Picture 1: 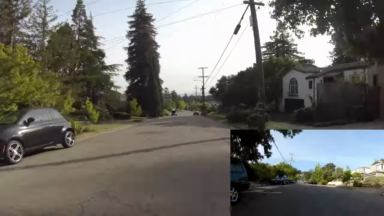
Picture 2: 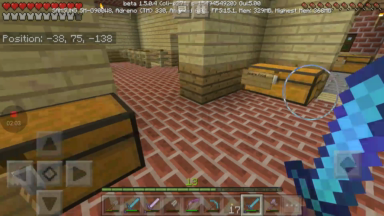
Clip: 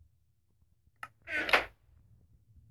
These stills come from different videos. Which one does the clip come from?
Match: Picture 2